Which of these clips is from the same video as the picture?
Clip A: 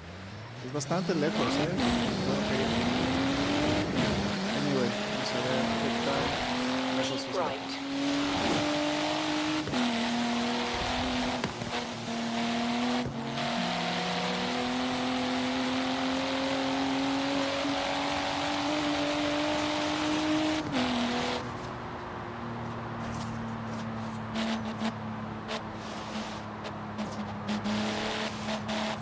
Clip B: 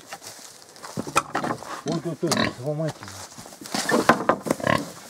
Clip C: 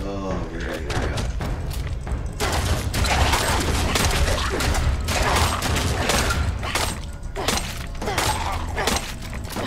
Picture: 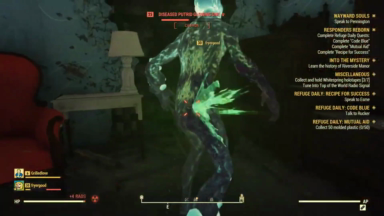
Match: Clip C